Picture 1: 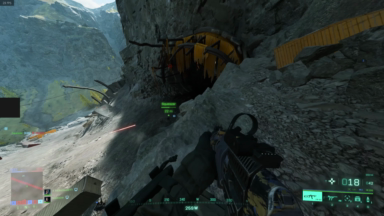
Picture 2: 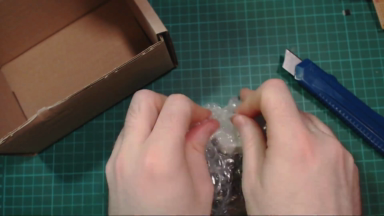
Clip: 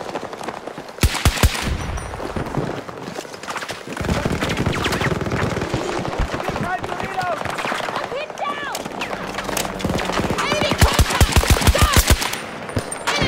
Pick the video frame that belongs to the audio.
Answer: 1